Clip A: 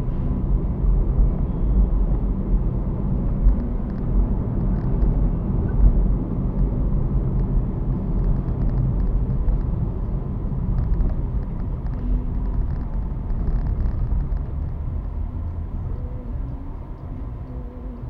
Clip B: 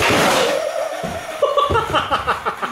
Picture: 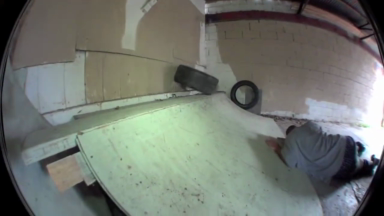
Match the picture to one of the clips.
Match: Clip B